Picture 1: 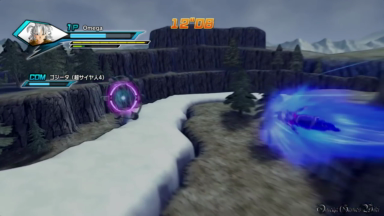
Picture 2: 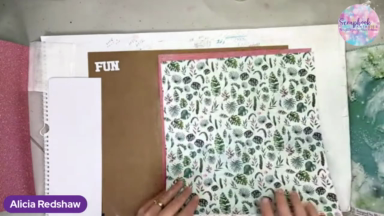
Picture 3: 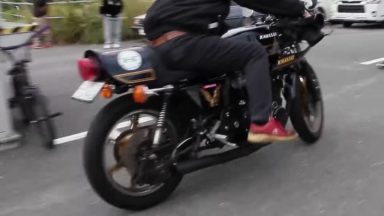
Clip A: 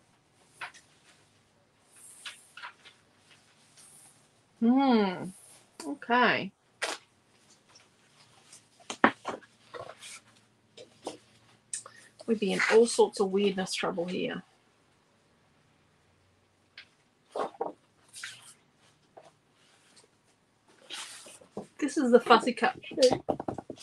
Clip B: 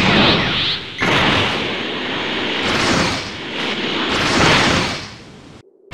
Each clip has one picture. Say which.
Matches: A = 2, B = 1